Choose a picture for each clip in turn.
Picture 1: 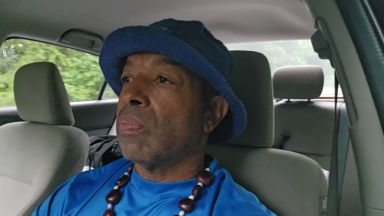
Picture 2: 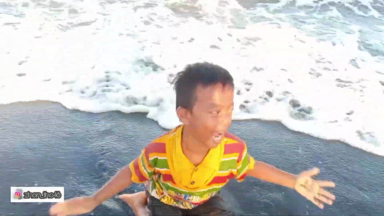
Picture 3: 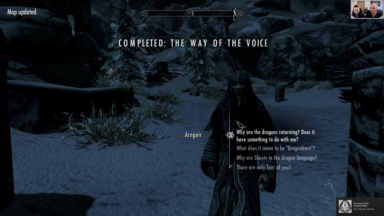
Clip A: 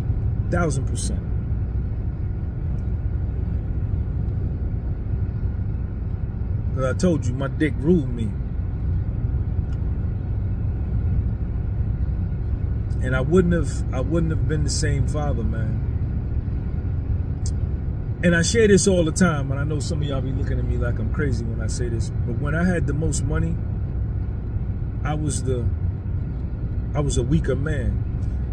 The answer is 1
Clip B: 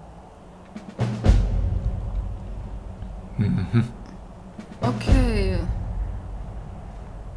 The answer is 3